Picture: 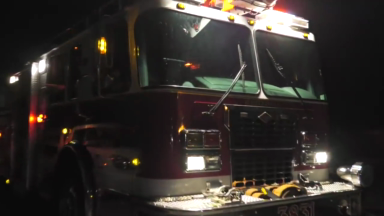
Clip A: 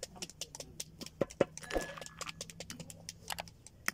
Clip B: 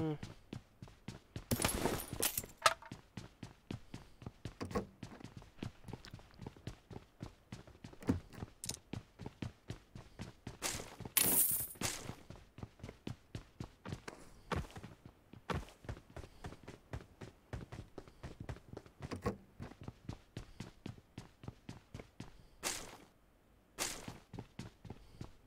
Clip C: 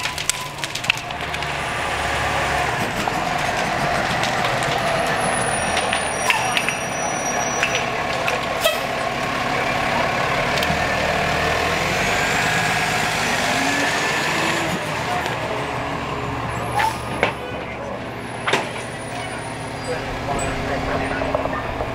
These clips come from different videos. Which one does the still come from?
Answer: C